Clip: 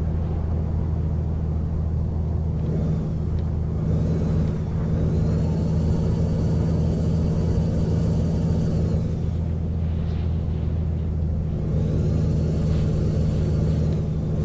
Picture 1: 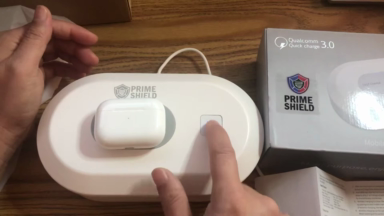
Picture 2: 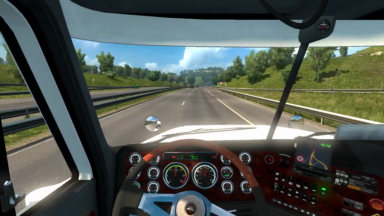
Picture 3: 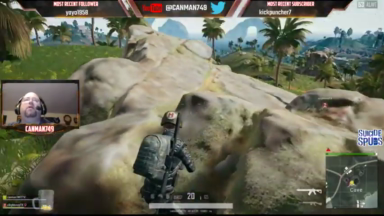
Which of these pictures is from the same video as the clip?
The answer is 2